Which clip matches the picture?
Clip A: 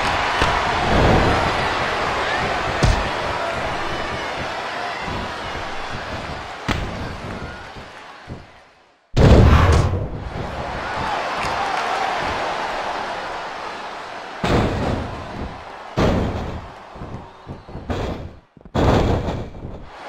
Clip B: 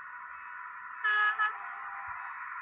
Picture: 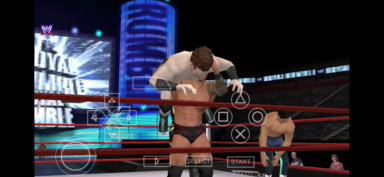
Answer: A